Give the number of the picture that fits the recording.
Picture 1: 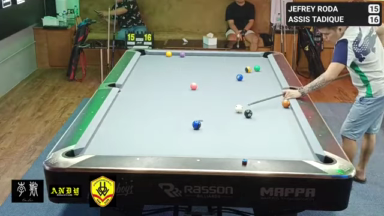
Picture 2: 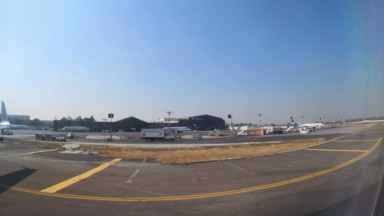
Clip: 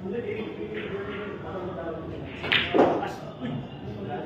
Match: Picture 1